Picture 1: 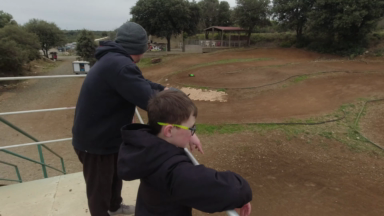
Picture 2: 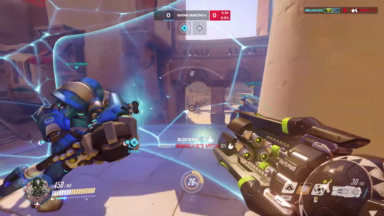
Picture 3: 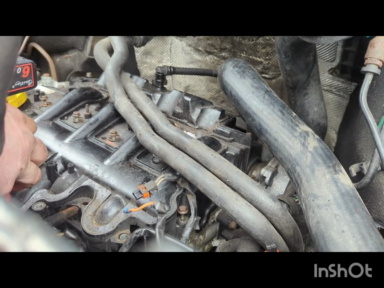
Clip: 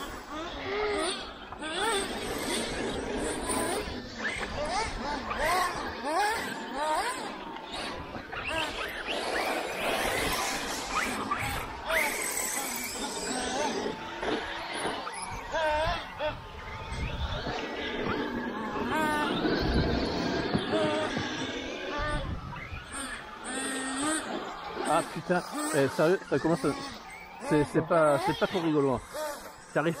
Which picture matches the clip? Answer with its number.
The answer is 1